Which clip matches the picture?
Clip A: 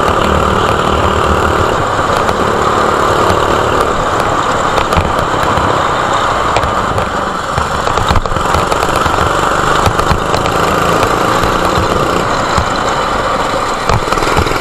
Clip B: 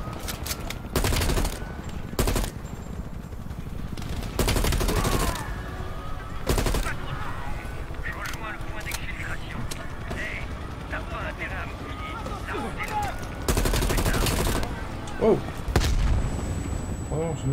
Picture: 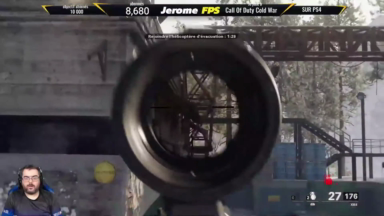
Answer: B